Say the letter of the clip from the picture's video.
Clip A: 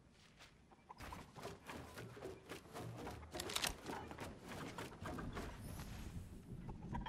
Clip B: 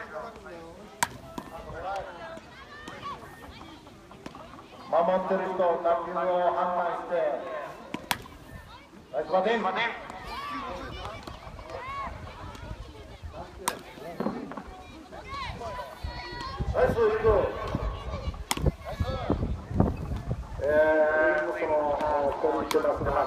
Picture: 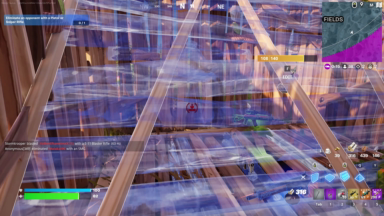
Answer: A